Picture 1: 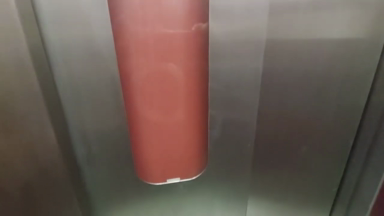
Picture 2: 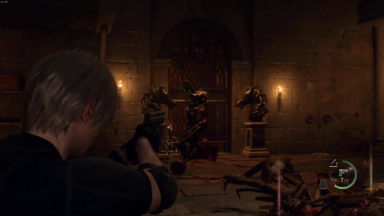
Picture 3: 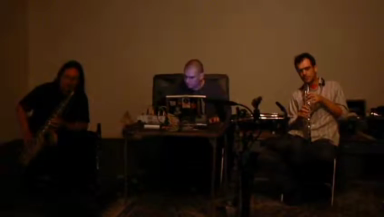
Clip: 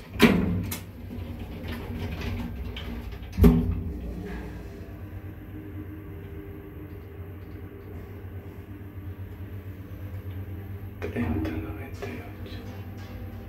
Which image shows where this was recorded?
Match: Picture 1